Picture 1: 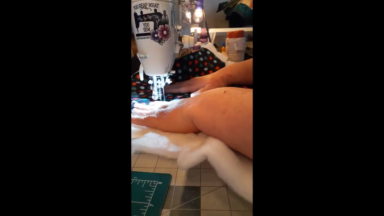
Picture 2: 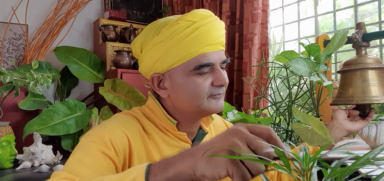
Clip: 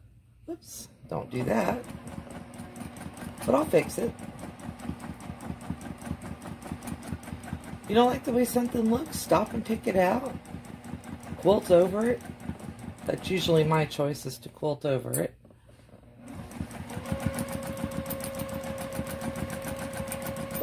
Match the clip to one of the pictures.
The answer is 1